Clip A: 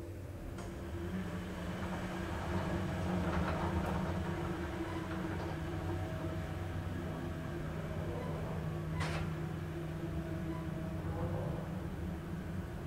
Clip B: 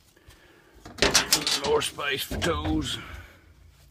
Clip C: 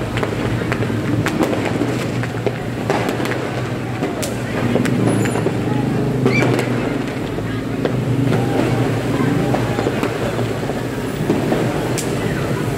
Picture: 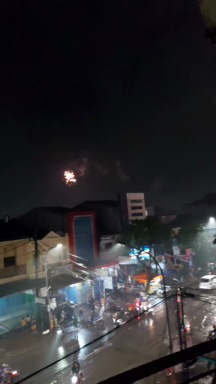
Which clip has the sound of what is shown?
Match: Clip C